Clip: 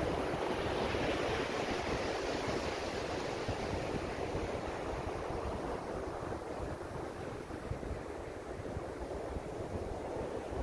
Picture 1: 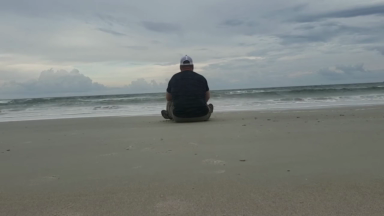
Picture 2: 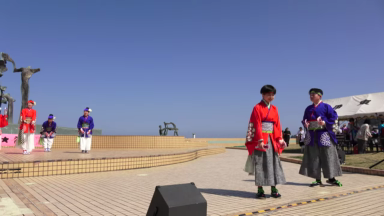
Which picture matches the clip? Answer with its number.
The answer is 1